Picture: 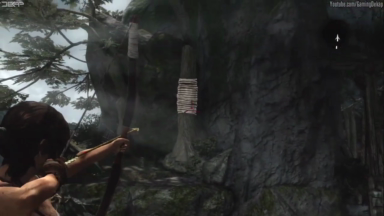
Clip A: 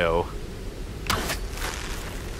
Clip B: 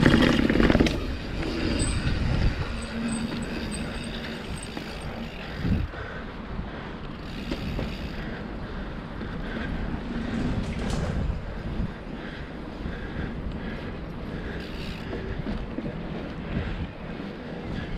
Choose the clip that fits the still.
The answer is A